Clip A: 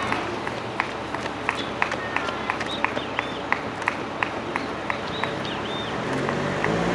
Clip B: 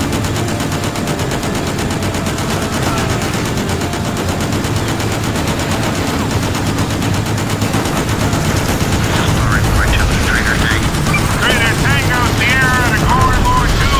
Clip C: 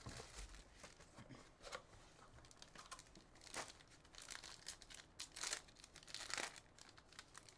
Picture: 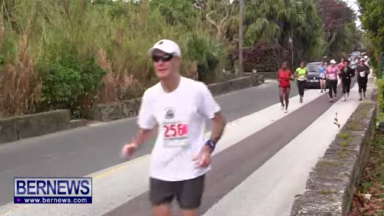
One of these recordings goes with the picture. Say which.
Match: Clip A